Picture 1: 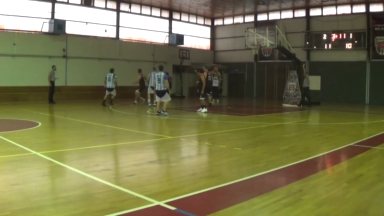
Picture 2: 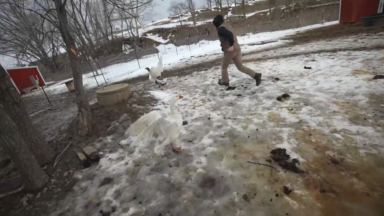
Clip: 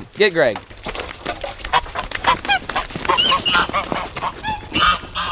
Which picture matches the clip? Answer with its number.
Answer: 2